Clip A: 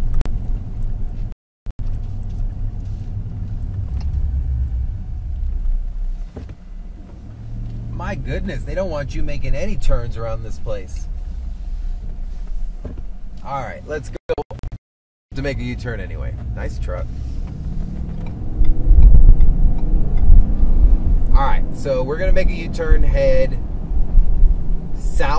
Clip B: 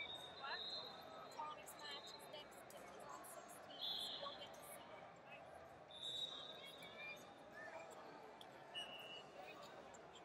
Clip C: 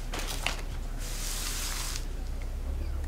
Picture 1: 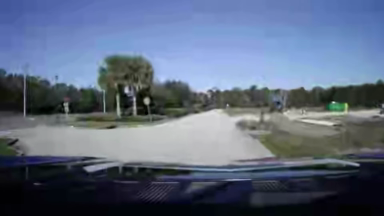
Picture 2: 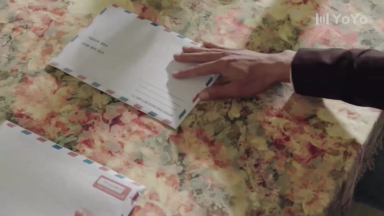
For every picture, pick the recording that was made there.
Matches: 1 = A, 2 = C